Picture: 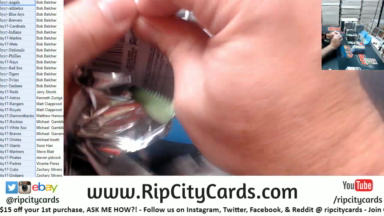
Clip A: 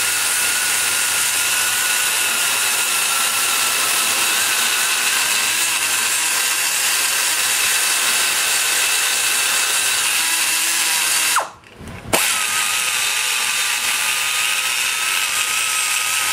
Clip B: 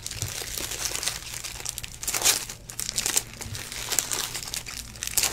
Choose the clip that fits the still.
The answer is B